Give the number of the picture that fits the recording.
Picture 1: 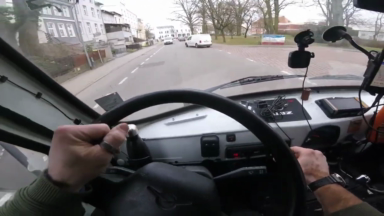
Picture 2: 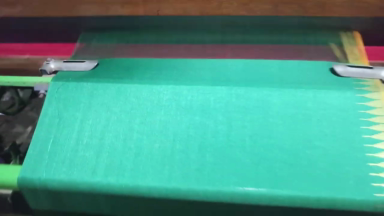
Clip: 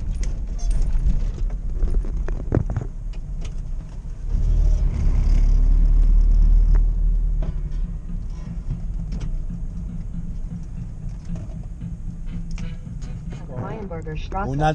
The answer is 1